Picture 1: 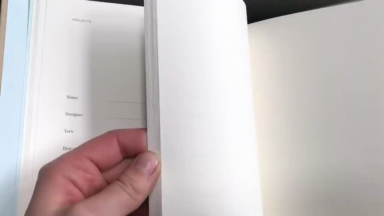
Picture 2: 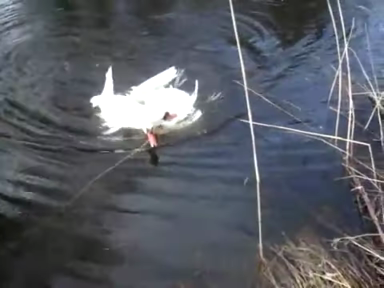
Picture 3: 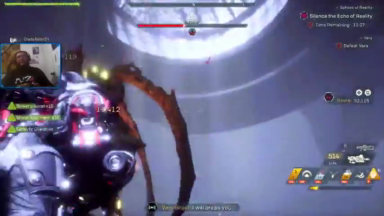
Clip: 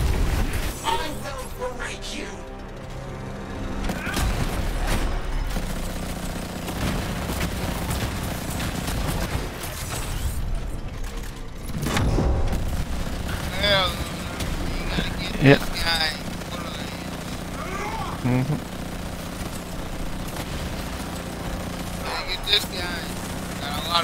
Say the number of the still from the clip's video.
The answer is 3